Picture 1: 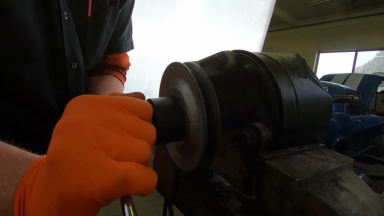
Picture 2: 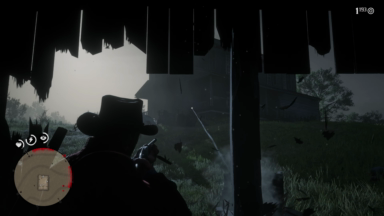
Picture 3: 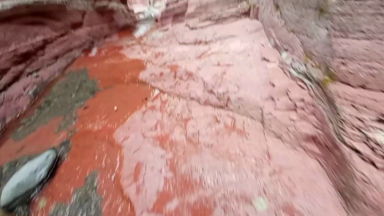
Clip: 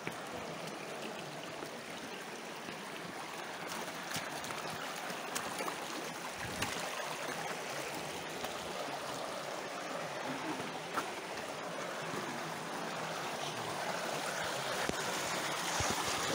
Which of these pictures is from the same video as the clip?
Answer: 3